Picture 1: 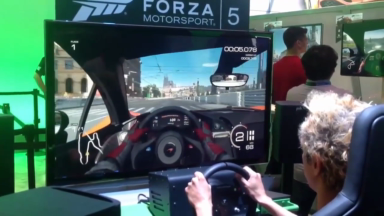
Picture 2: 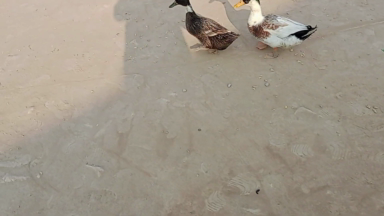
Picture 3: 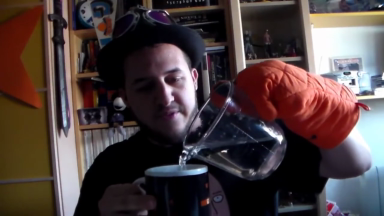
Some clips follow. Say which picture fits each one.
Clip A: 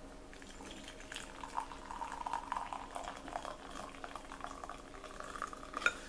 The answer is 3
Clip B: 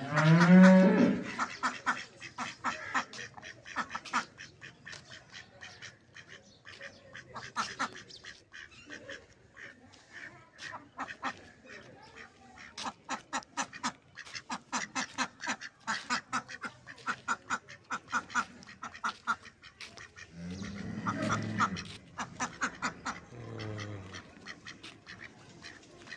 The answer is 2